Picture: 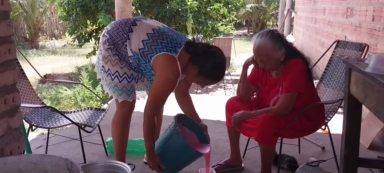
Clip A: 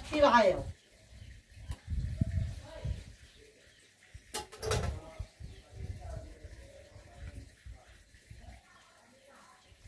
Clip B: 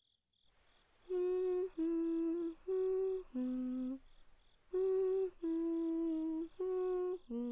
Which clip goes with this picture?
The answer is A